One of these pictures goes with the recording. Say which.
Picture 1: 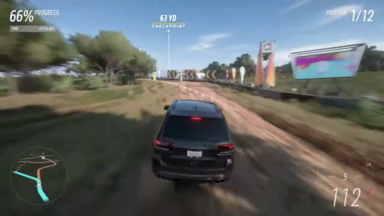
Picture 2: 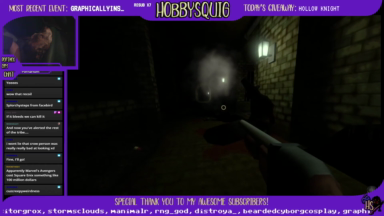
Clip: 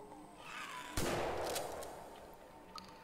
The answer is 2